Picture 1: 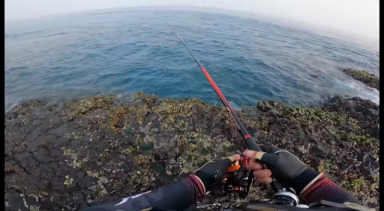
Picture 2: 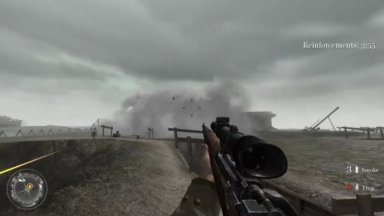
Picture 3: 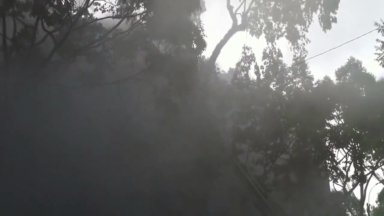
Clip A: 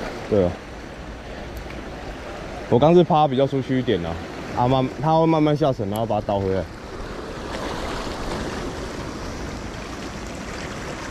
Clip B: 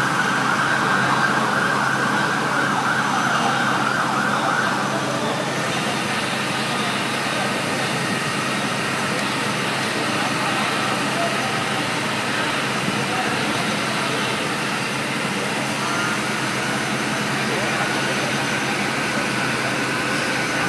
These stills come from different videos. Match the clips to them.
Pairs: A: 1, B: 3